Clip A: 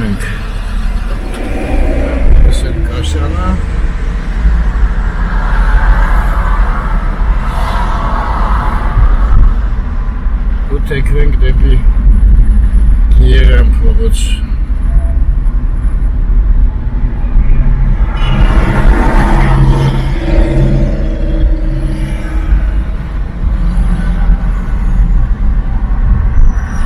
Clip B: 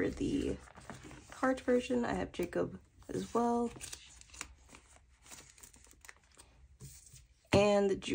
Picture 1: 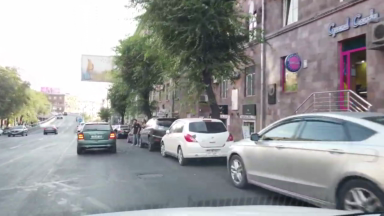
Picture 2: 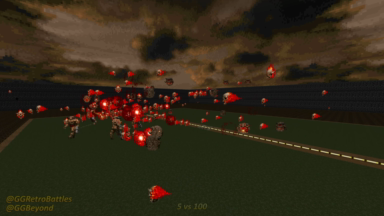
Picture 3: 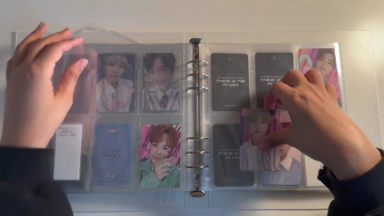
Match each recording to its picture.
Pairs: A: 1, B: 3